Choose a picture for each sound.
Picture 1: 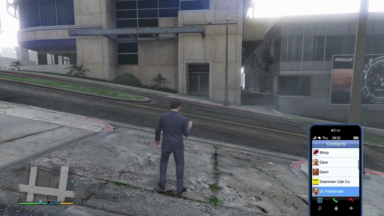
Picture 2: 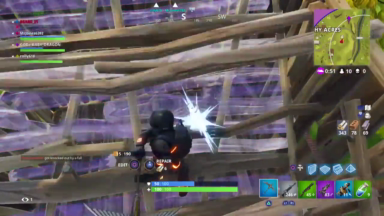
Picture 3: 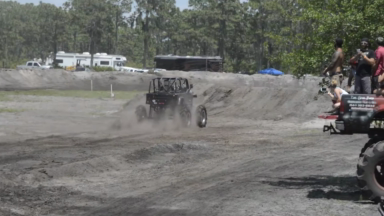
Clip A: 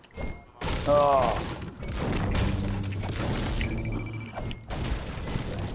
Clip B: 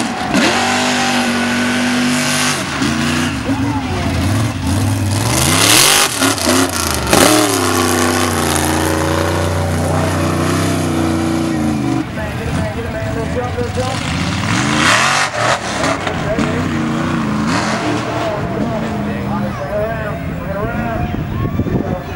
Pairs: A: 2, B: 3